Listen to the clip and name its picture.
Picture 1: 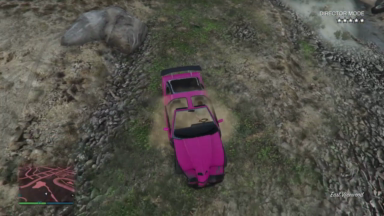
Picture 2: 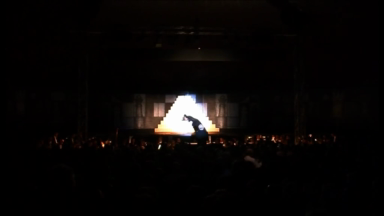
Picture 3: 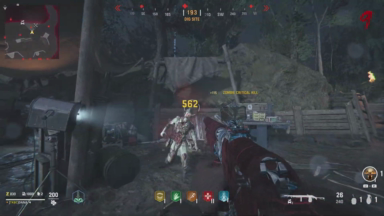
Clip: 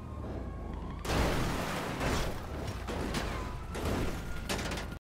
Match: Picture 1